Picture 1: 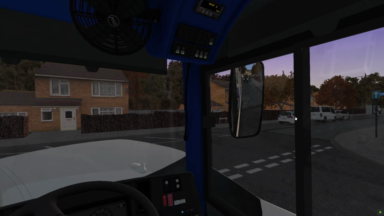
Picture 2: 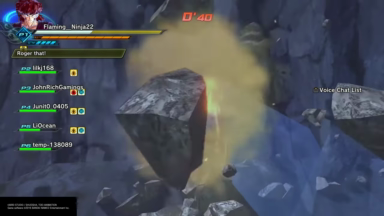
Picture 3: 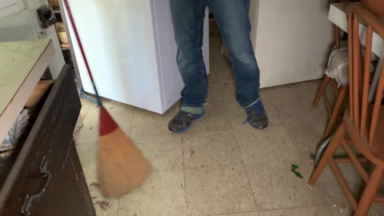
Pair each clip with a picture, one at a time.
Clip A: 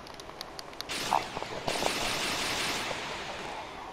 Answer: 2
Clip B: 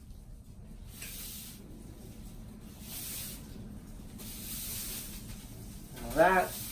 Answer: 3